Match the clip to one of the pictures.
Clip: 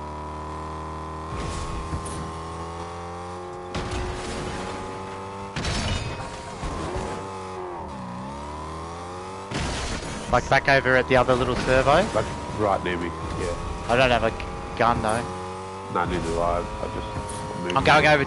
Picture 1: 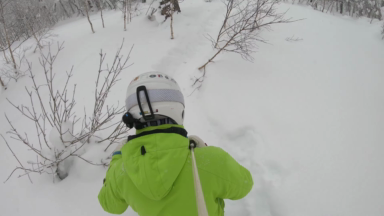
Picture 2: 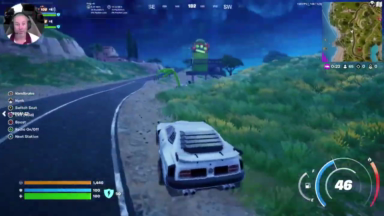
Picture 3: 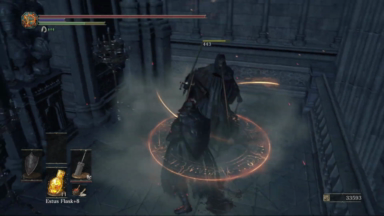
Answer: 2